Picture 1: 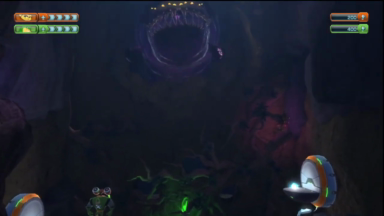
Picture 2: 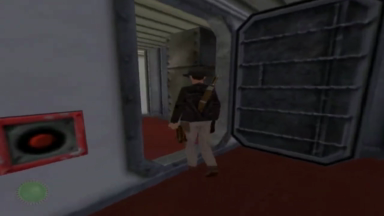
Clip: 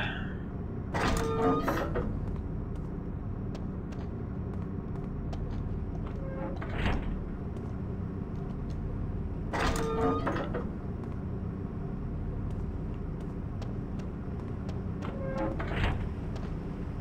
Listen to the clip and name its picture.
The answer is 2